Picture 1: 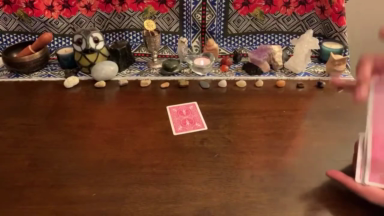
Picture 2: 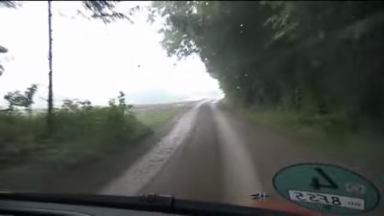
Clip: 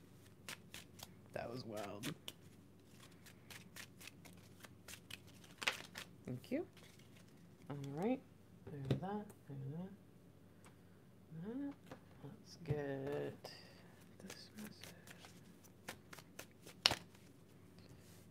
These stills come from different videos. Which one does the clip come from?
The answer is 1